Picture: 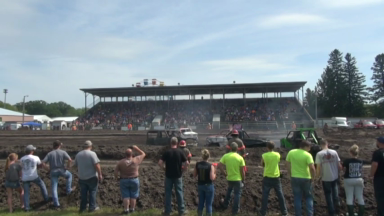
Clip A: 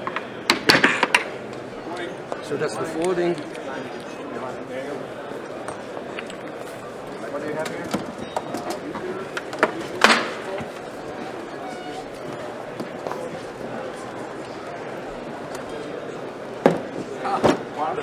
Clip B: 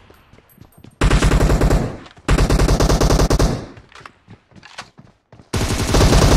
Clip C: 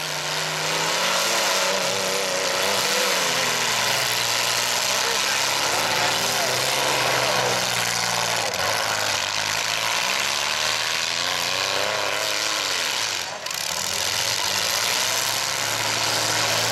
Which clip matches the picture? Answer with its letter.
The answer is C